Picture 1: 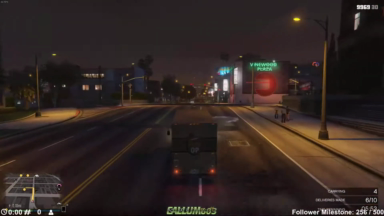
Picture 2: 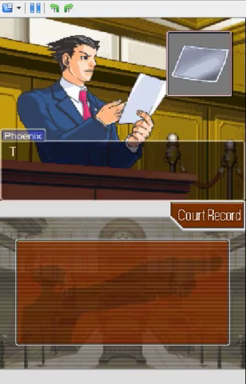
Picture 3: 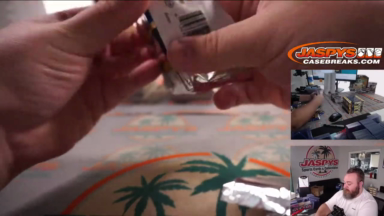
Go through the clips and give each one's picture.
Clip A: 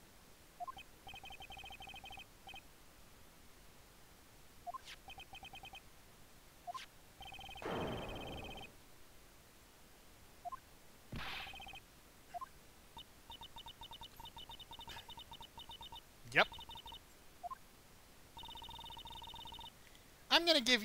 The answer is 2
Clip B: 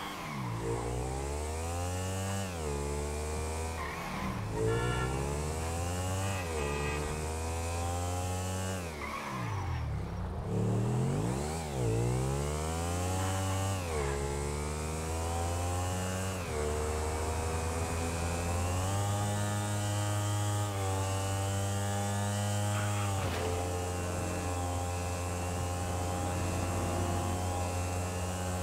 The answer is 1